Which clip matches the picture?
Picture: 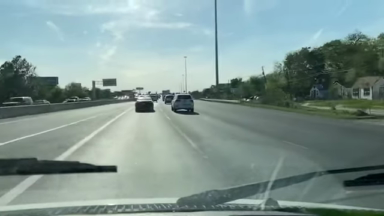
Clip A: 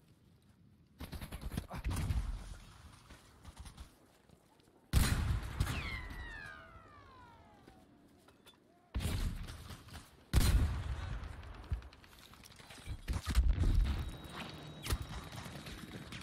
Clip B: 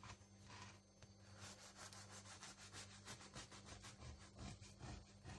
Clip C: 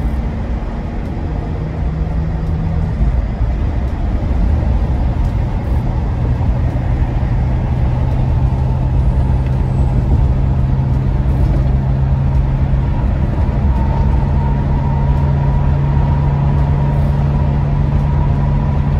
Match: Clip C